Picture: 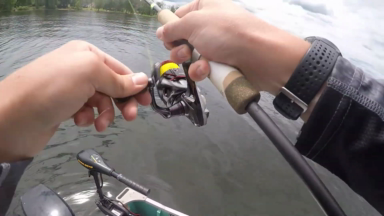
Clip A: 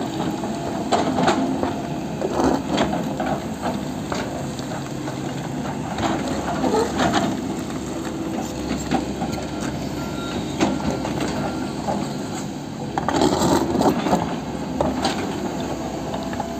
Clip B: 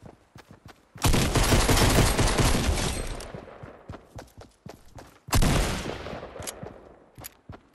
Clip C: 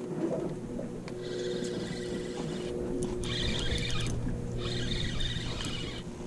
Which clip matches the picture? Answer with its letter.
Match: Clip C